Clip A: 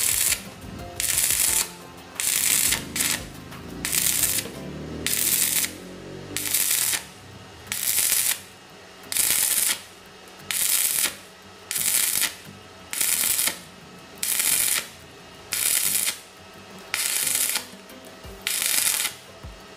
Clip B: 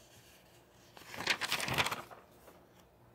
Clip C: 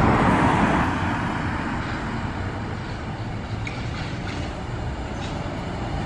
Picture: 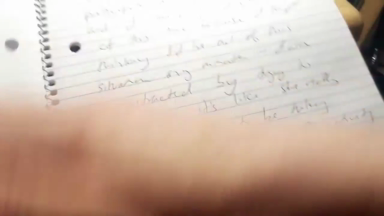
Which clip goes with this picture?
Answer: B